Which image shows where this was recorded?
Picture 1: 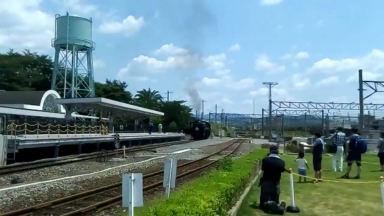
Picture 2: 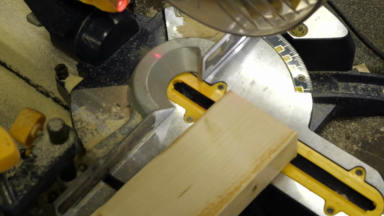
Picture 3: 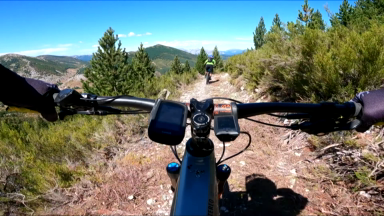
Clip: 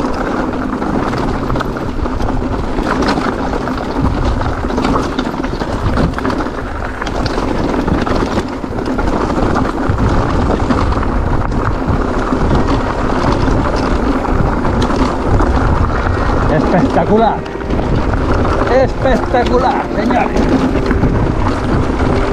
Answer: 3